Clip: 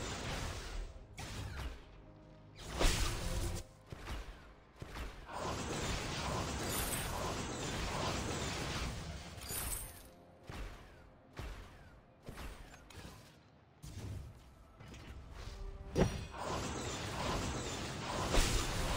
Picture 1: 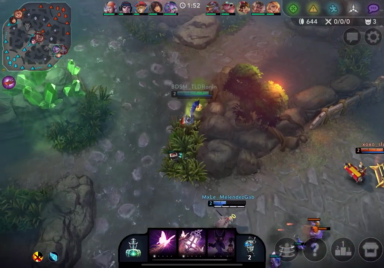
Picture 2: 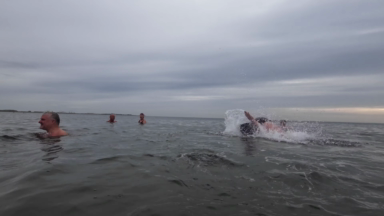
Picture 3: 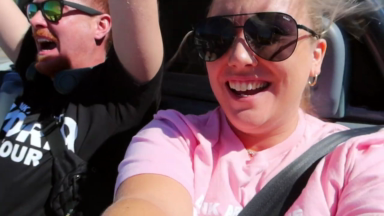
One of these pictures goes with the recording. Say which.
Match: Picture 1